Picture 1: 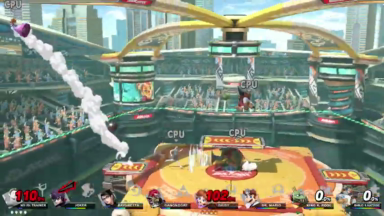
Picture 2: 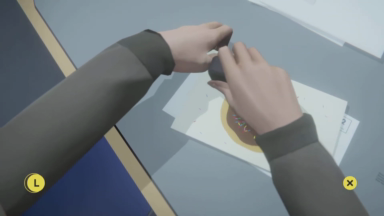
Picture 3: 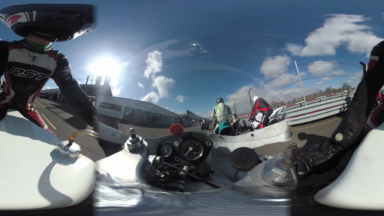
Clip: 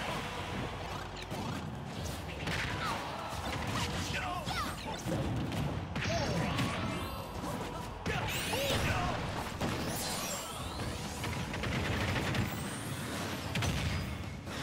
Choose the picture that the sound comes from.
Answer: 1